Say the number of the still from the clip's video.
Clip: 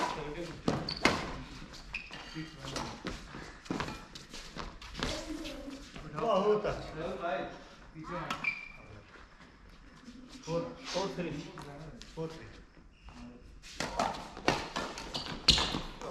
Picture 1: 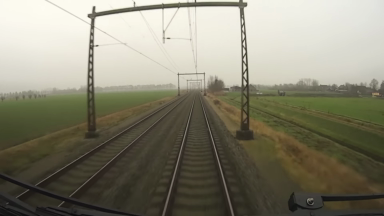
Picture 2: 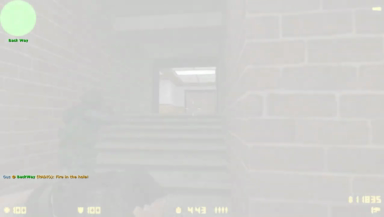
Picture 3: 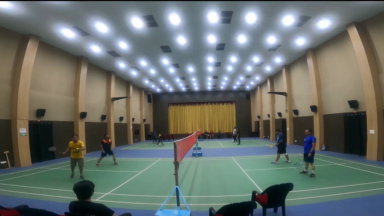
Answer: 3